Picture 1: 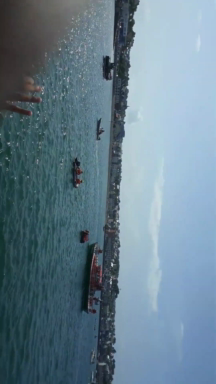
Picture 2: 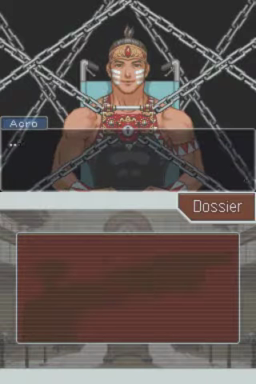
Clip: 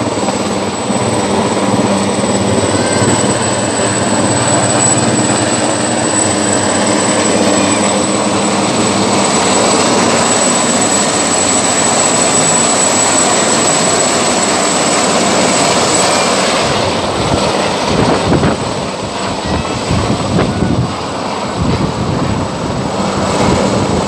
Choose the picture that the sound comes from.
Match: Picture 1